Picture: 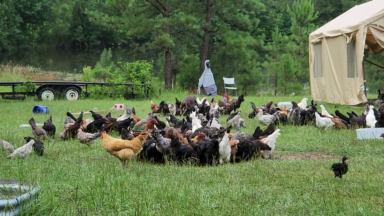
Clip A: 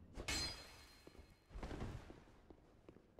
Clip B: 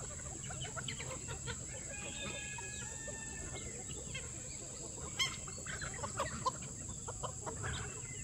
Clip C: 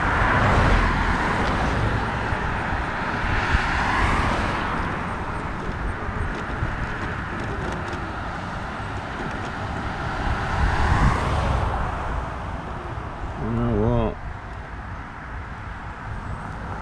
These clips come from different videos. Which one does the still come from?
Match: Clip B